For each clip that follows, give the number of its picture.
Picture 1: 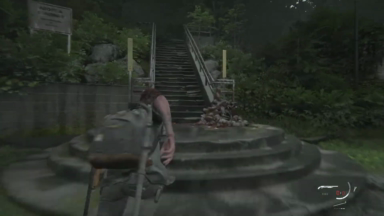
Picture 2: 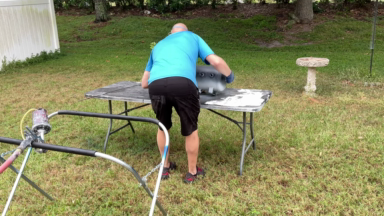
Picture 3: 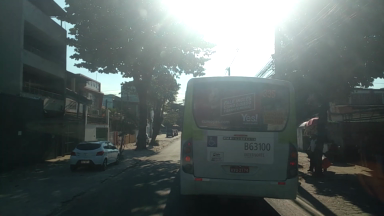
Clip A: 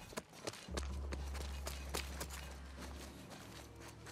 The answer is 1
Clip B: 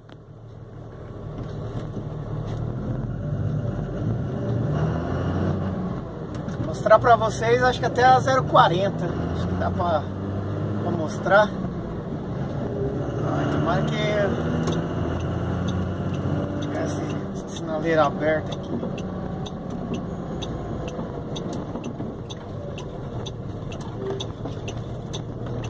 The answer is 3